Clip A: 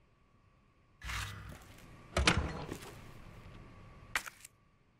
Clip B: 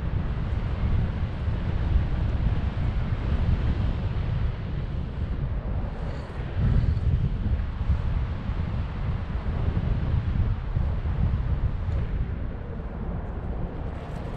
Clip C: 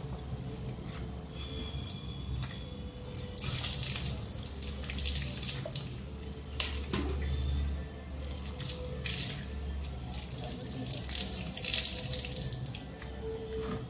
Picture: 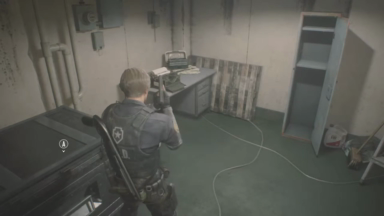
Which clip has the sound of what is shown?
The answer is A